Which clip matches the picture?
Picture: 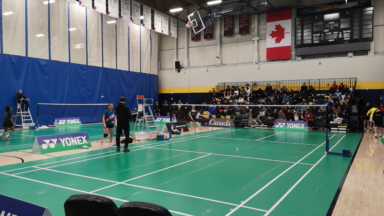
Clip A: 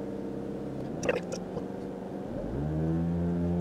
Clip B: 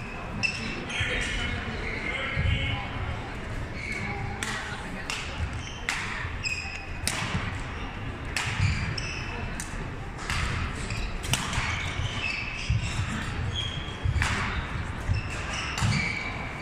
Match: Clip B